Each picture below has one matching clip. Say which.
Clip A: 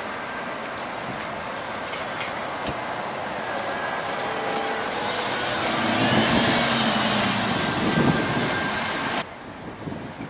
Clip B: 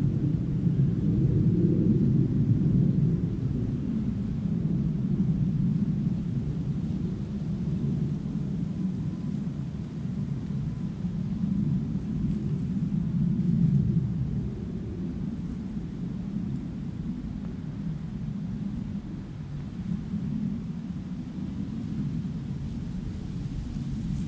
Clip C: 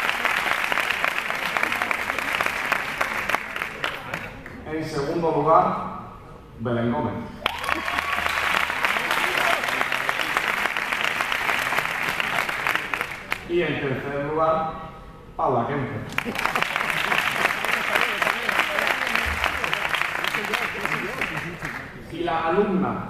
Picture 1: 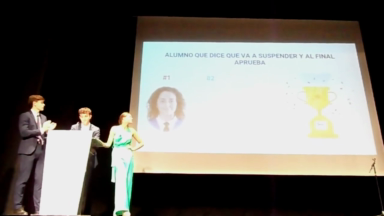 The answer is C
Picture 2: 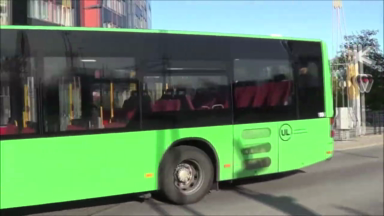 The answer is A